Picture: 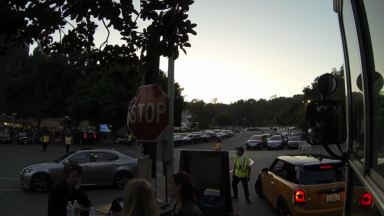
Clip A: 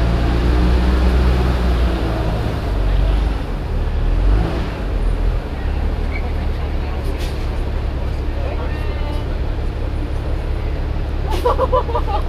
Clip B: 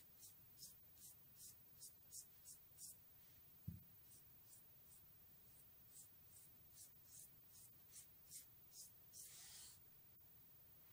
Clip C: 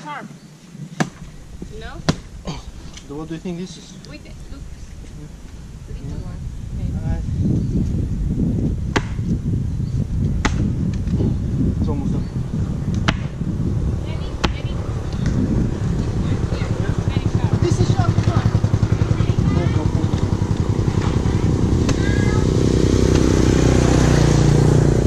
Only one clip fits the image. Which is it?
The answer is A